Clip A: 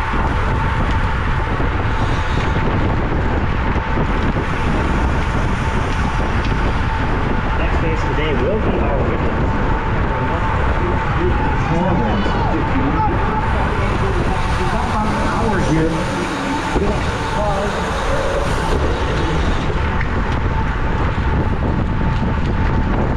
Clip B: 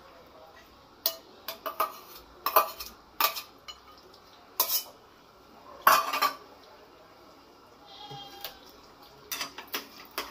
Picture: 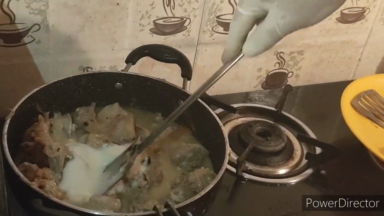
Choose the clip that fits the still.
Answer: B